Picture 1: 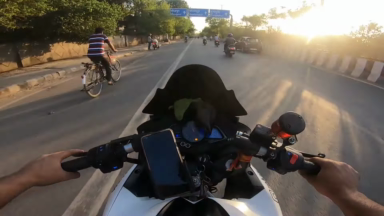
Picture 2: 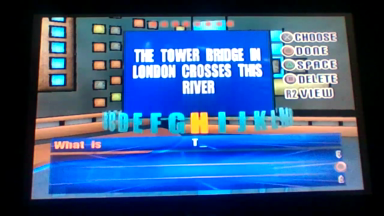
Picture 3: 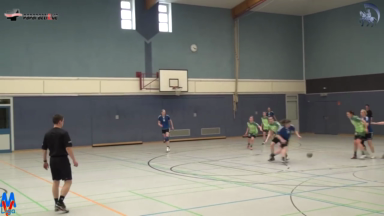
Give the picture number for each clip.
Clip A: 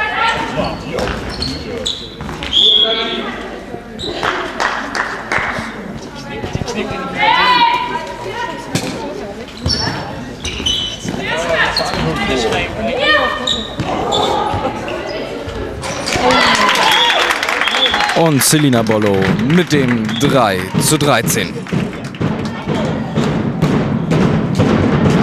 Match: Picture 3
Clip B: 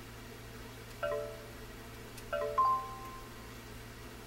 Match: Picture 2